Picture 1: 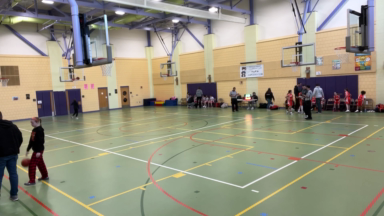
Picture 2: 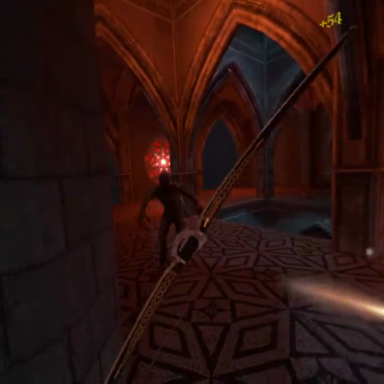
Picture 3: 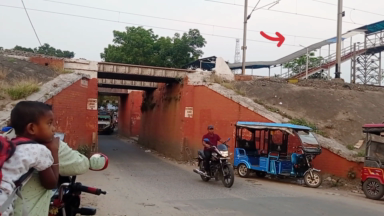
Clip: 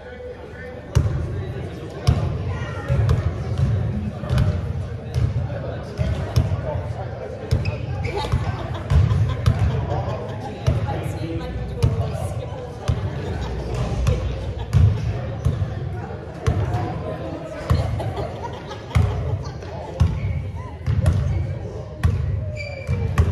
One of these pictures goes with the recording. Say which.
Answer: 1